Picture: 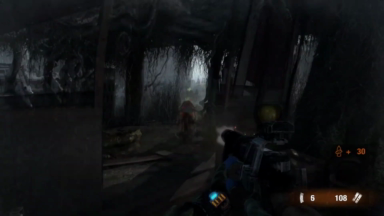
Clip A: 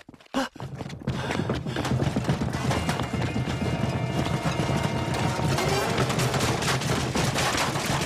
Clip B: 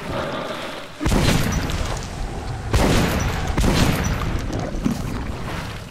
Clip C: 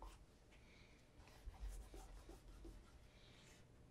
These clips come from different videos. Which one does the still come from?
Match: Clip B